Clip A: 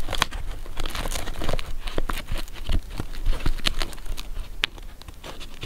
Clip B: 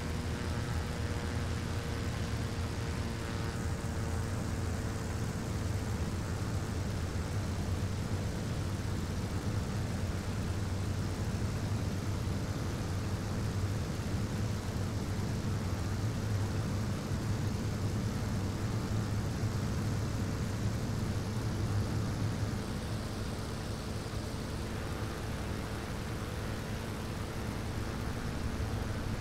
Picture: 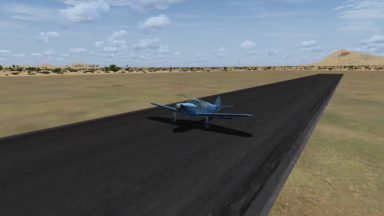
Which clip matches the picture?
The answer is B